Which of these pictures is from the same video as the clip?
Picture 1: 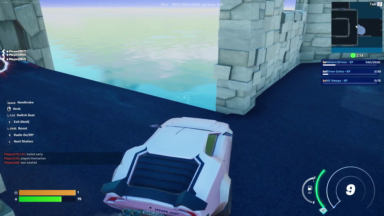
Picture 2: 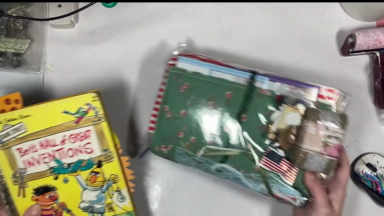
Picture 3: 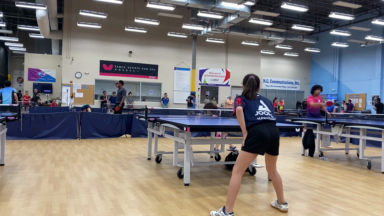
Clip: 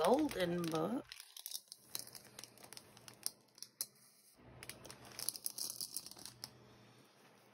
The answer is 2